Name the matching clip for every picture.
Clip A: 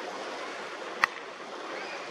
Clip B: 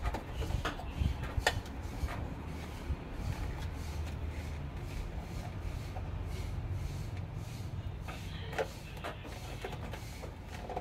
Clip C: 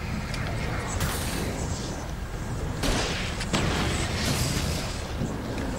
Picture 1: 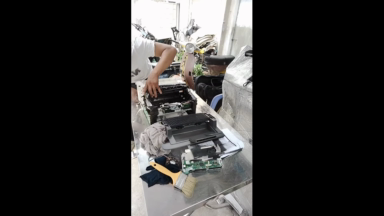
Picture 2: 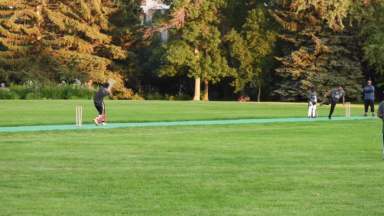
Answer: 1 B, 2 A